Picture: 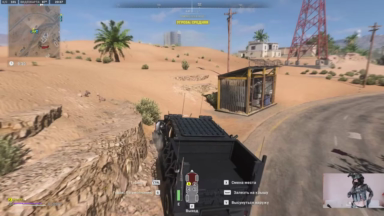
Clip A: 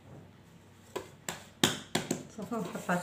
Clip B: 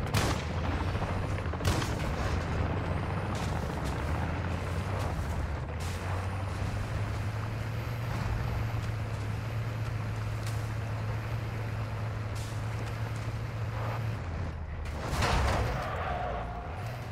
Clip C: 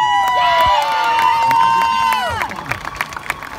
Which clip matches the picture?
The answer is B